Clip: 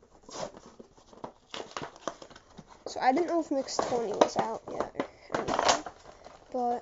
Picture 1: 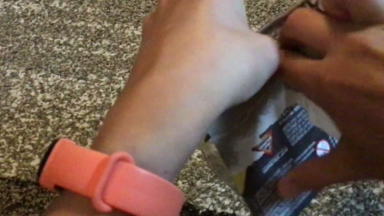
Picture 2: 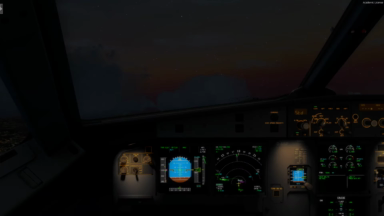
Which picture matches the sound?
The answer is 1